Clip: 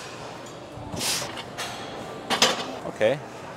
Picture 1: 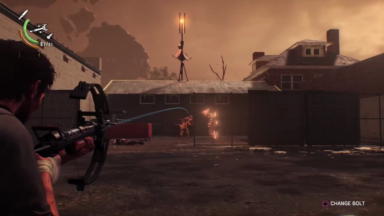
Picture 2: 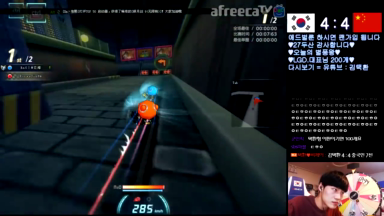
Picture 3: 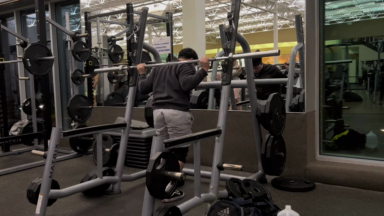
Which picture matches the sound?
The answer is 3